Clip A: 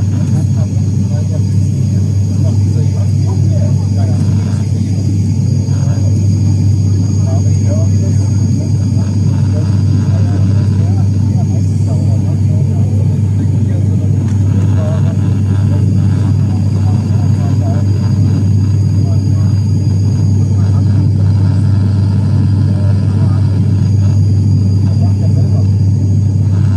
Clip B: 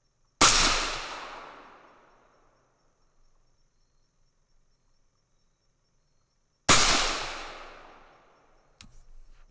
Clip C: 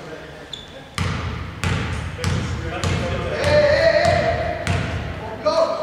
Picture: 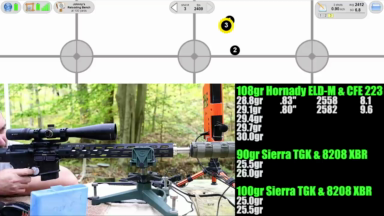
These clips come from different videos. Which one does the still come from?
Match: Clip B